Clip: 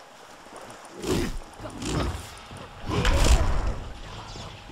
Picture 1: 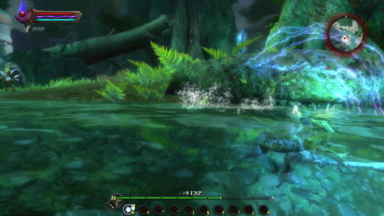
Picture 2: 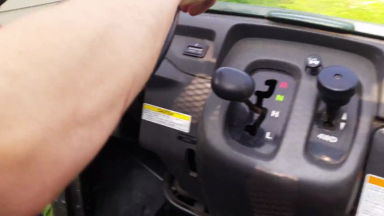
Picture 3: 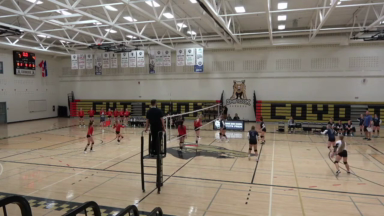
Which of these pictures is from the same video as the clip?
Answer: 1